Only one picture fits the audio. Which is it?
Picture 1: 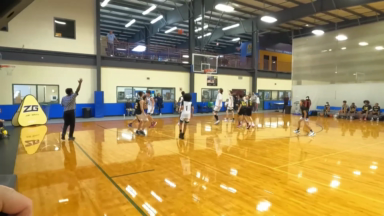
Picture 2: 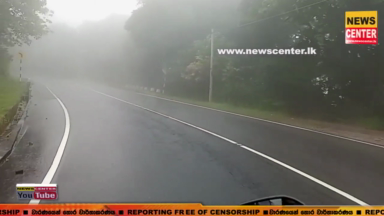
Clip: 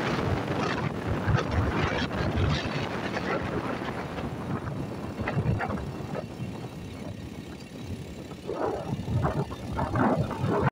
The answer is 2